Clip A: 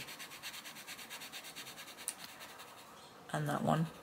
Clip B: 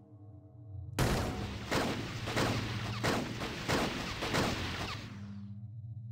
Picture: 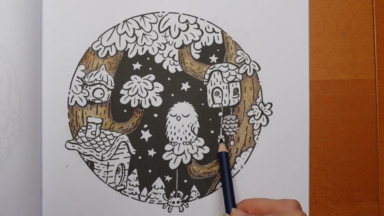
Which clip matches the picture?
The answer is A